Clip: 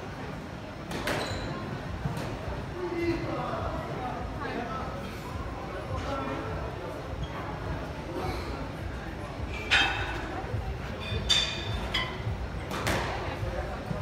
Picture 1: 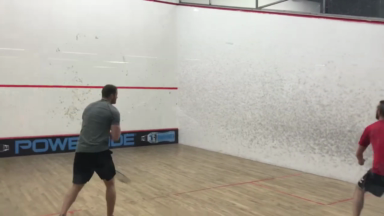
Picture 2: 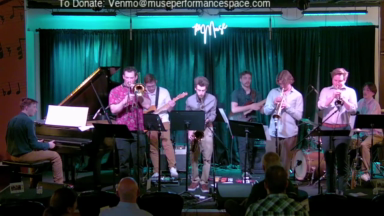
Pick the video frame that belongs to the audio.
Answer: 1